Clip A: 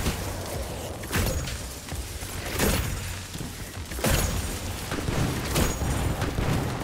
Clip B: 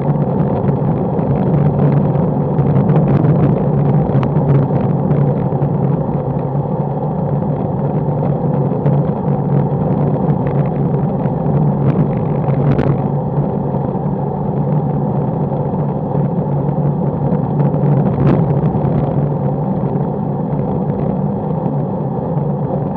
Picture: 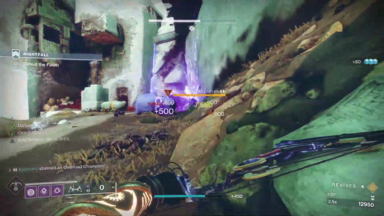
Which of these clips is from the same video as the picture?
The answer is A